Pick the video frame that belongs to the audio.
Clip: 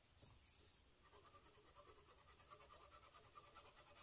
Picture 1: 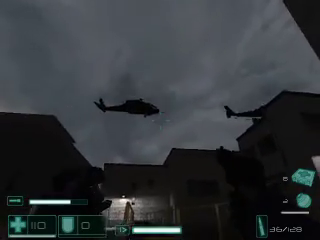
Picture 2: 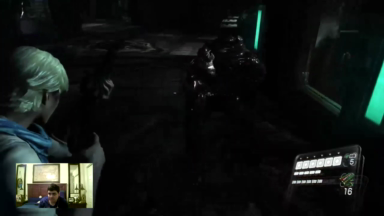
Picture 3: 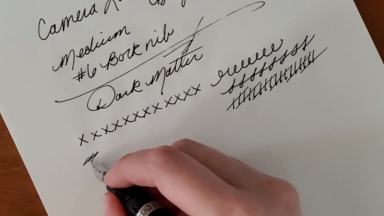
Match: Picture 3